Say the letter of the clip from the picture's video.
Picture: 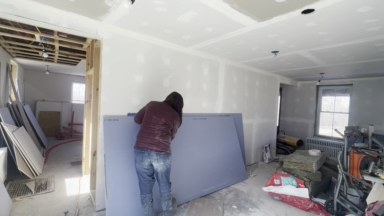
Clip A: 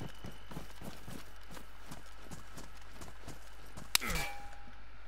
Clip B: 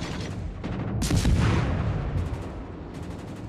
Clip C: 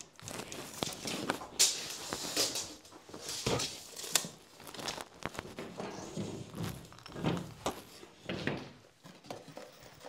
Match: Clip C